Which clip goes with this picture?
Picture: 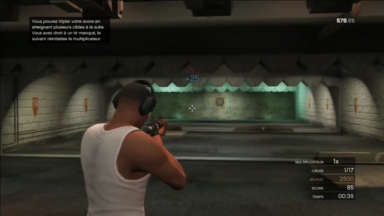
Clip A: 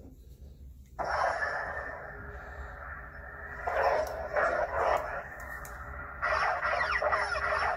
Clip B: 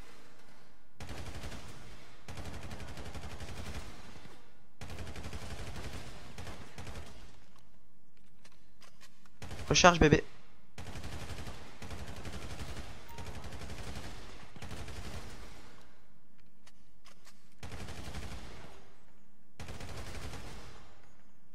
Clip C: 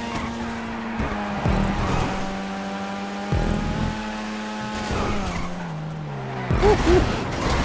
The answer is B